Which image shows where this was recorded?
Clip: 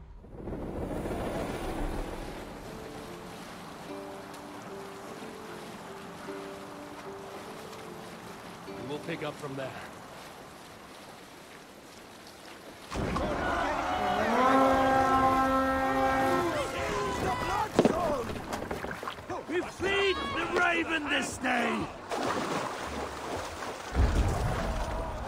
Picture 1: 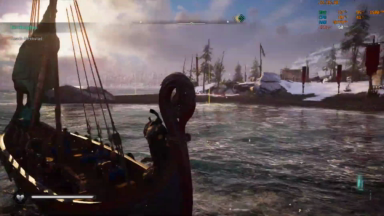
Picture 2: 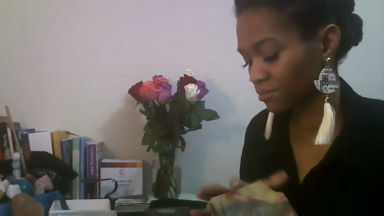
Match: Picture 1